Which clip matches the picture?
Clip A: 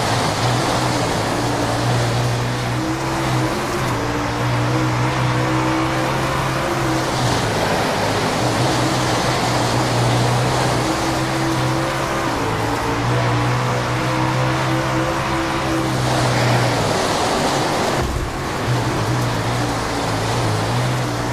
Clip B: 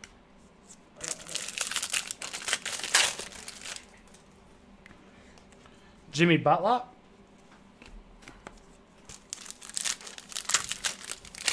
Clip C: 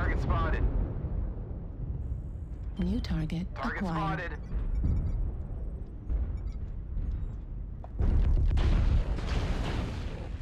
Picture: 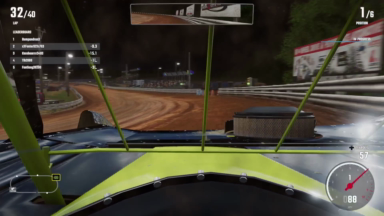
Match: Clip A